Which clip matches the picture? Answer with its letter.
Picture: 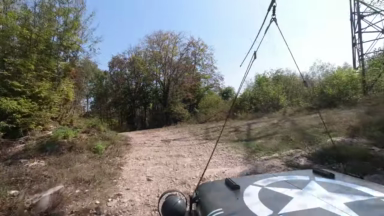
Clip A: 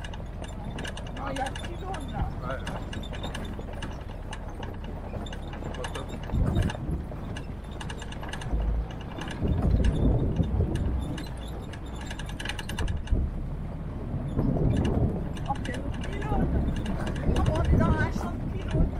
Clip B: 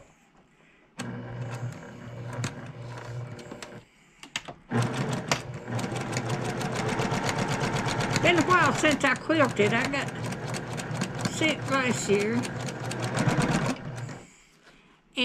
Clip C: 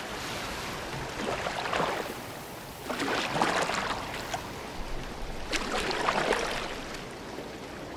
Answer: A